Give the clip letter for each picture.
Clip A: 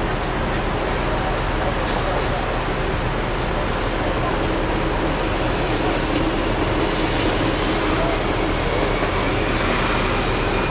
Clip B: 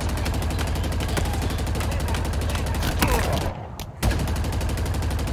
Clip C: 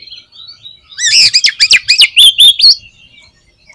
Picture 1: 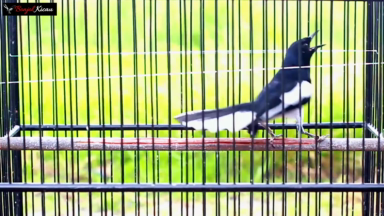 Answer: C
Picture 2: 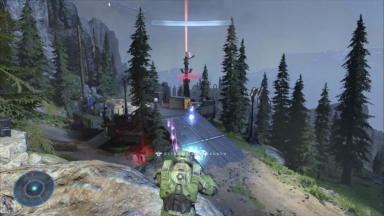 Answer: B